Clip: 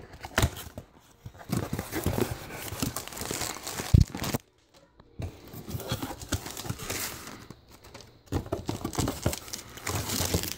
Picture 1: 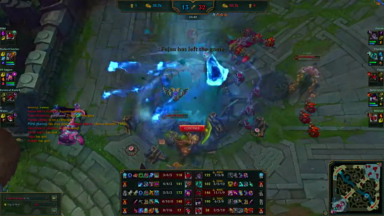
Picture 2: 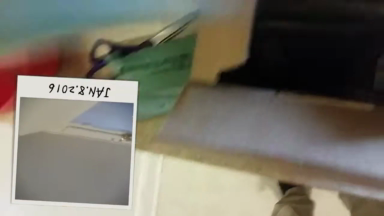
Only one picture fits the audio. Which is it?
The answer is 2